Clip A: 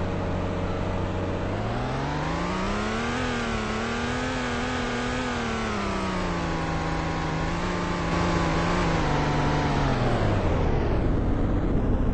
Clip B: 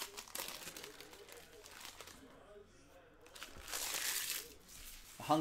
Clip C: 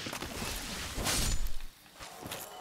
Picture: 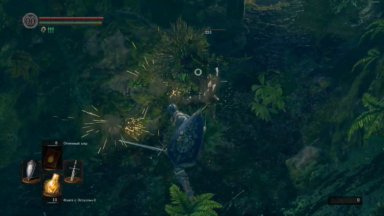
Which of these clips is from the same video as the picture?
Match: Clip C